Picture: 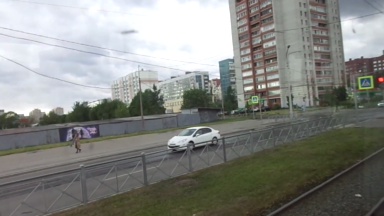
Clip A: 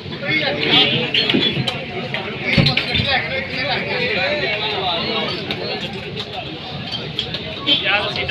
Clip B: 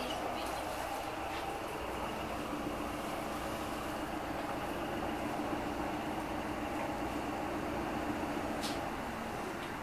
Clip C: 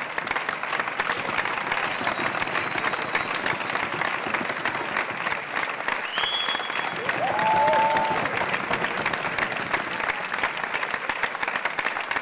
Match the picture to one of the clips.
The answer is B